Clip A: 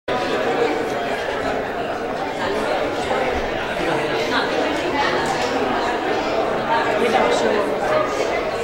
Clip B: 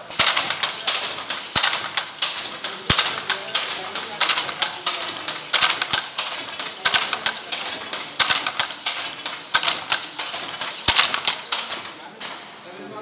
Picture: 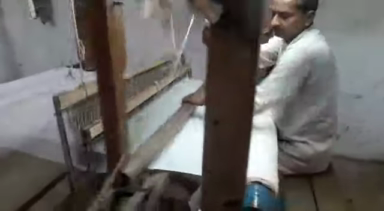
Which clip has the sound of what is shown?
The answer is B